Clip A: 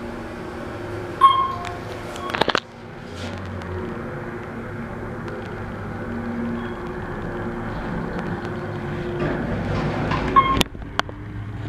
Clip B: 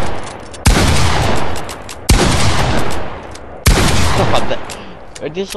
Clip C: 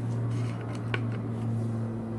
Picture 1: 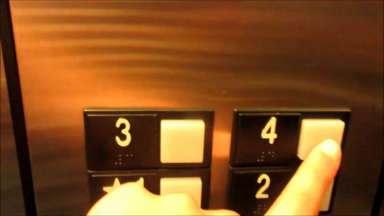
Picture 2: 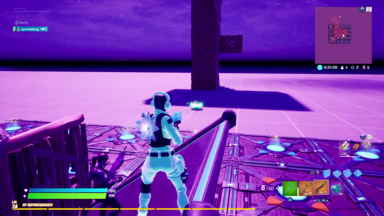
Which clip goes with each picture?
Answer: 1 A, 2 B